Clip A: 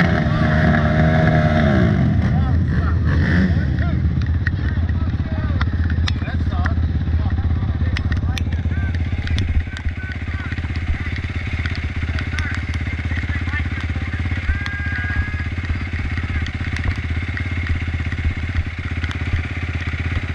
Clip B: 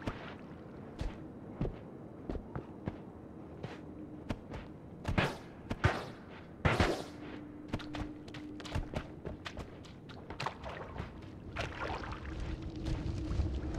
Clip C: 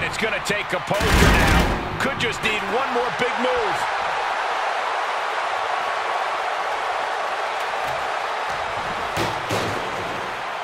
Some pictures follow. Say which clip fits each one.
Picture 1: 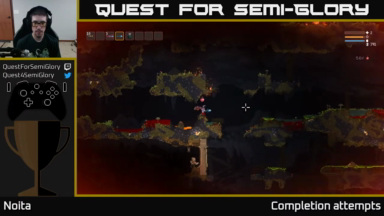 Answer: B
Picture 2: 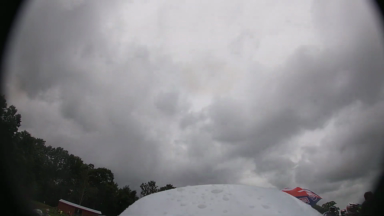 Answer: A